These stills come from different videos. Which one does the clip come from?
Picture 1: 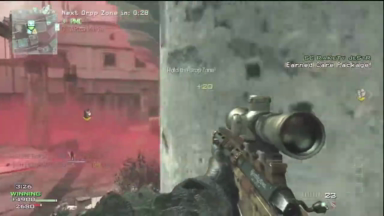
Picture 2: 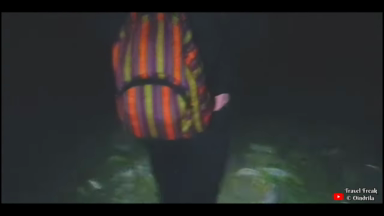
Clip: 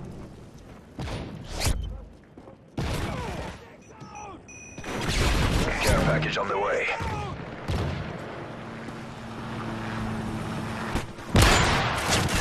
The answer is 1